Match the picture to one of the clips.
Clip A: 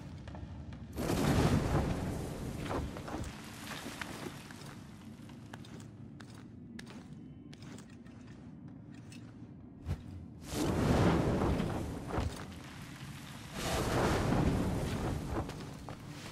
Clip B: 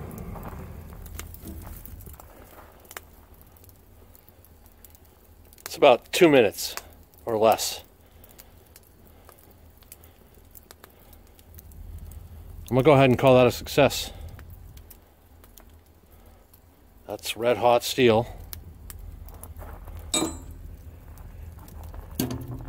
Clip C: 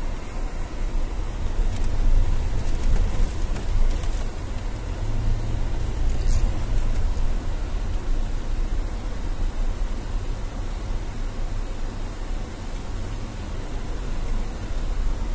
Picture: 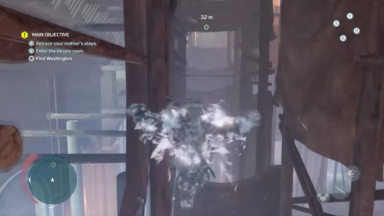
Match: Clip A